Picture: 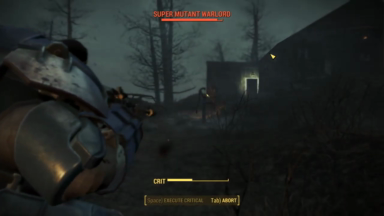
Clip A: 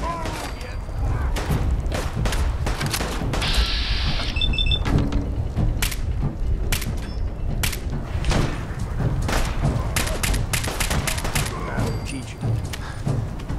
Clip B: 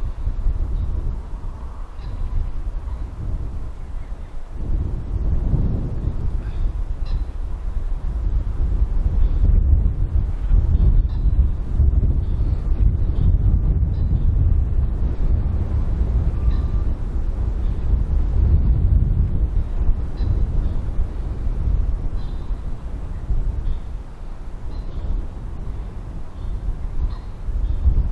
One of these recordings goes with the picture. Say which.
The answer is A